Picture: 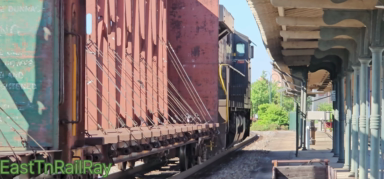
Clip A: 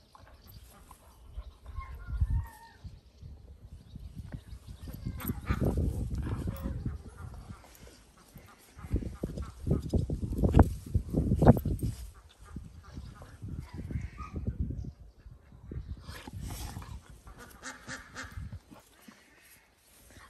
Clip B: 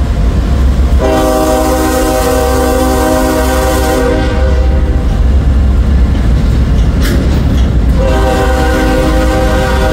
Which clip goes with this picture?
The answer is B